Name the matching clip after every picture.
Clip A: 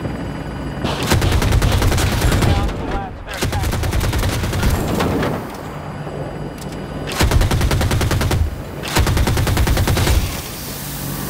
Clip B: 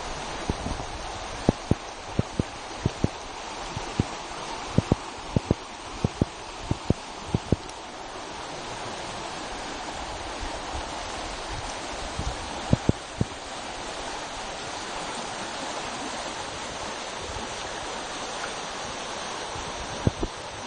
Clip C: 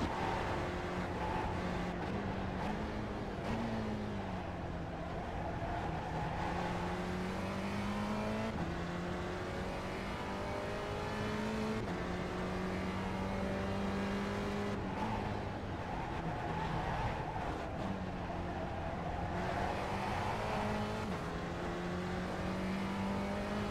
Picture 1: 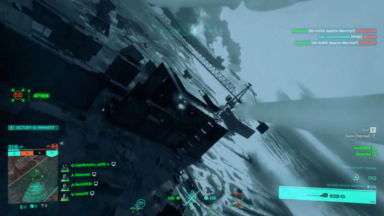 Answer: A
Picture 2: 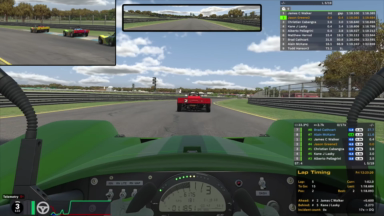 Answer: C